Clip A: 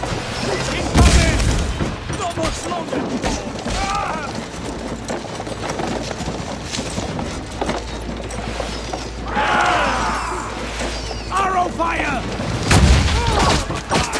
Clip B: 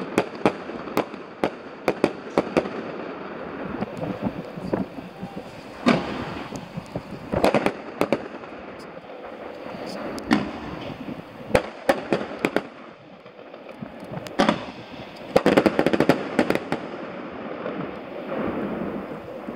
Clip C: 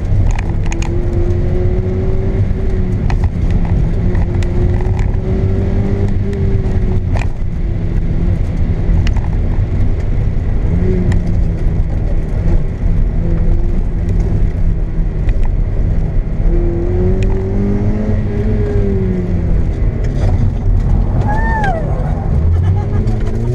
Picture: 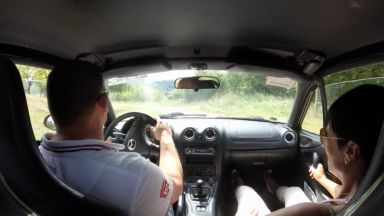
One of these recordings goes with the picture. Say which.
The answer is C